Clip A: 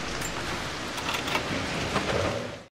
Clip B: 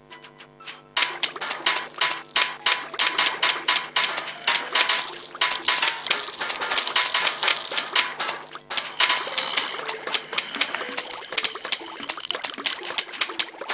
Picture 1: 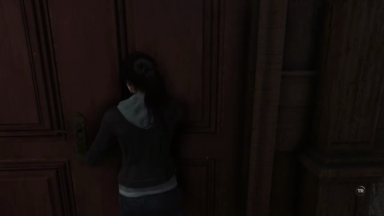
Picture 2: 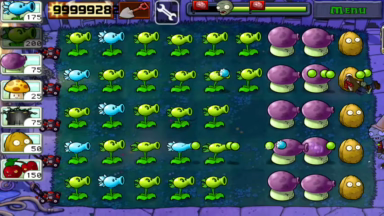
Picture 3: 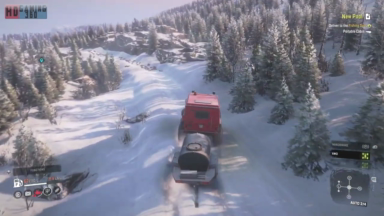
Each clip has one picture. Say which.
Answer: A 1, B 2